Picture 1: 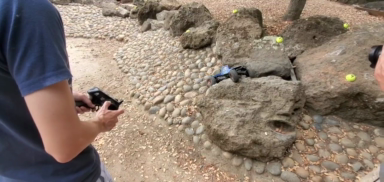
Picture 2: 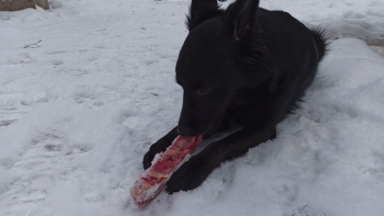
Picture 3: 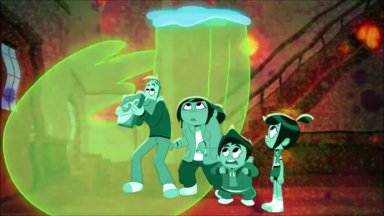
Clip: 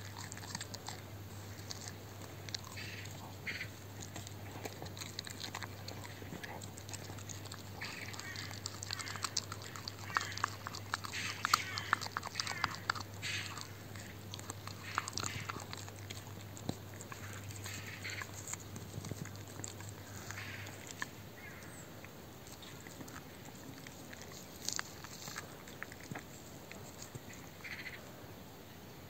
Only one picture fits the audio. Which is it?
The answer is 2